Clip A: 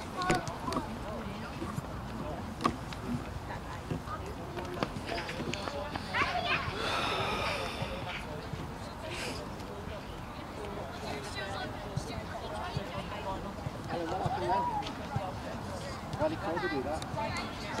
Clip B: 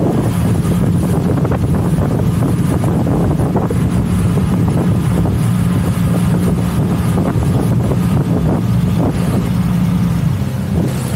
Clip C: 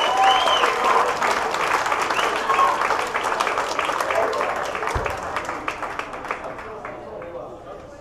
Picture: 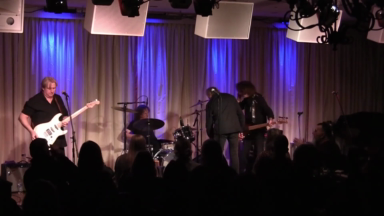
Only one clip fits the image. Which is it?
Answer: C